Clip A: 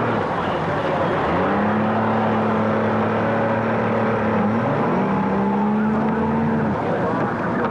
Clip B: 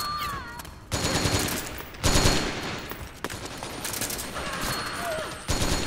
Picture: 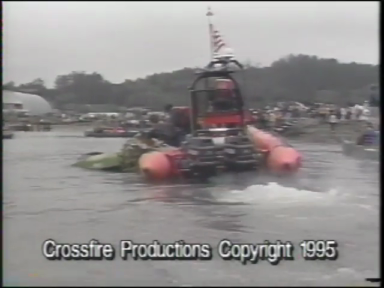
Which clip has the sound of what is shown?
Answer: A